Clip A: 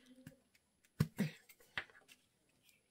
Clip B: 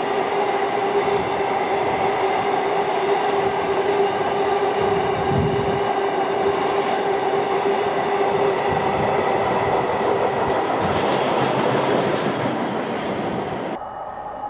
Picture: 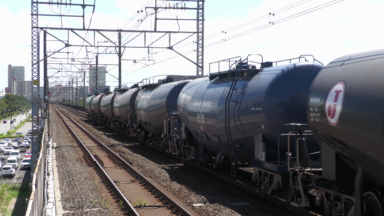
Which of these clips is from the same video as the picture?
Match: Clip B